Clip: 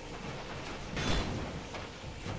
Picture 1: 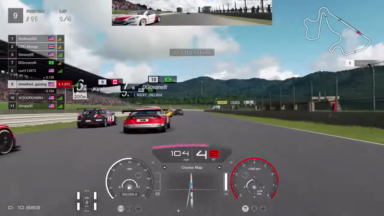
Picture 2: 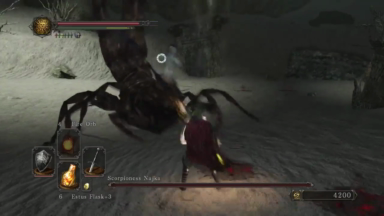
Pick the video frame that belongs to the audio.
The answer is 2